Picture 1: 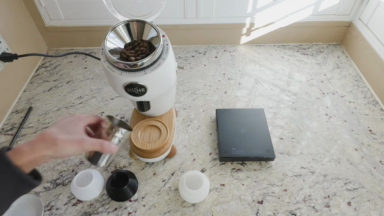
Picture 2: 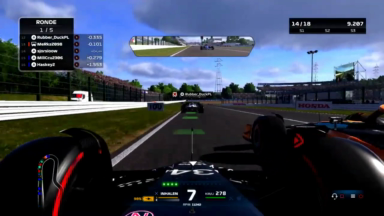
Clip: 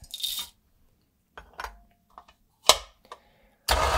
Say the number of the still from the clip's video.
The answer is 1